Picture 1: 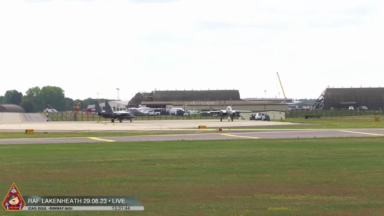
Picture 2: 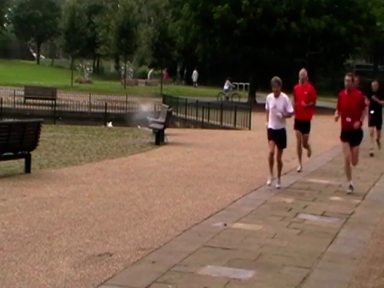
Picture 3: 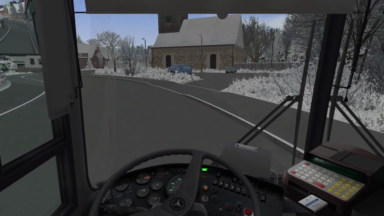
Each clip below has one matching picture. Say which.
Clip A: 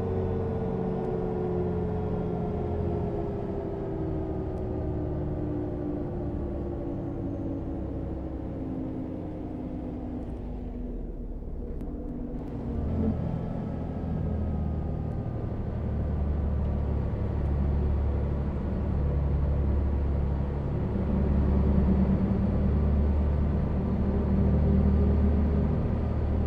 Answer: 3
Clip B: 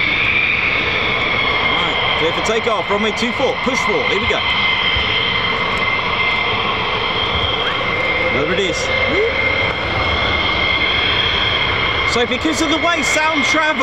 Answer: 1